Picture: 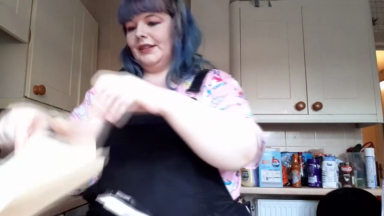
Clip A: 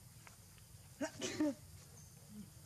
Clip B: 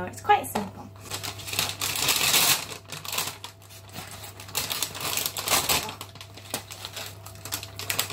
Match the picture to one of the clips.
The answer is B